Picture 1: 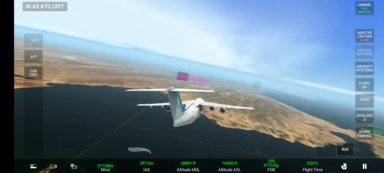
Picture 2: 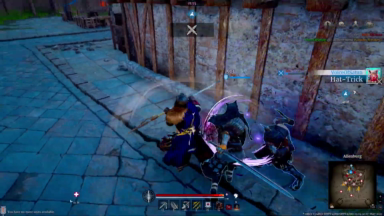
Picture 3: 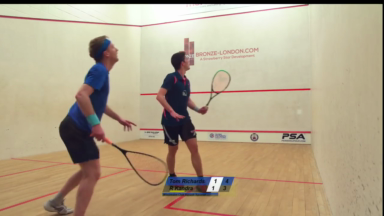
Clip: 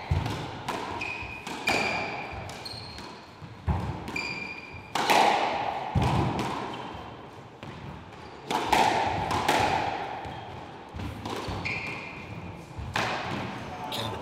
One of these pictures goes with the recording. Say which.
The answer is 3